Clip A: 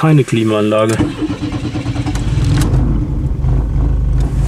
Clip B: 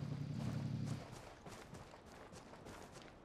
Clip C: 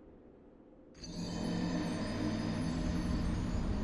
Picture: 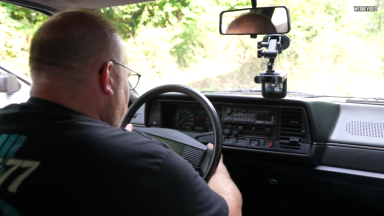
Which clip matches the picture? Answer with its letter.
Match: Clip A